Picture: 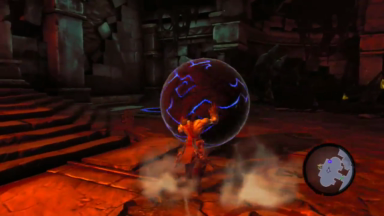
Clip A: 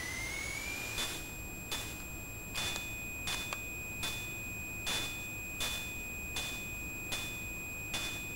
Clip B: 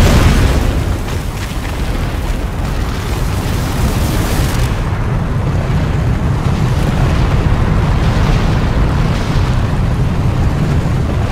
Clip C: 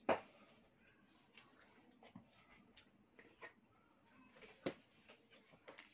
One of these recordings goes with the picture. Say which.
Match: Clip B